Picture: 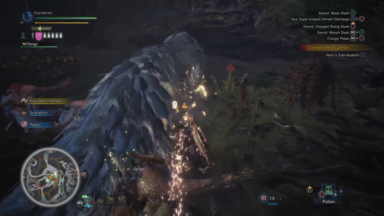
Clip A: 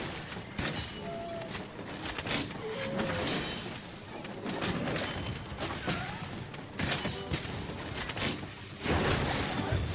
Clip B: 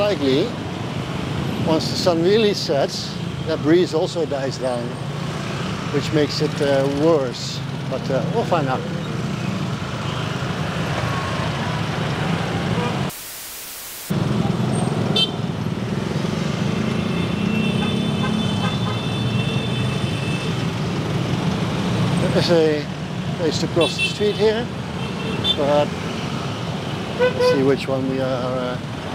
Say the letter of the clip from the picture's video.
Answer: A